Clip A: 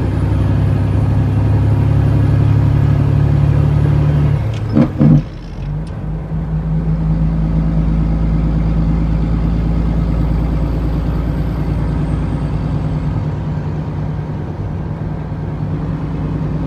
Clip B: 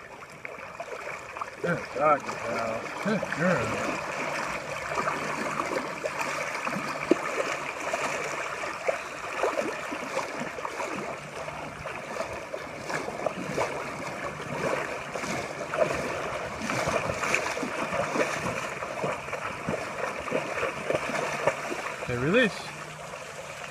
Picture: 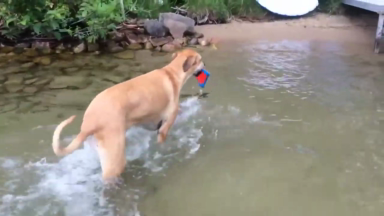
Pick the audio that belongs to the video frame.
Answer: B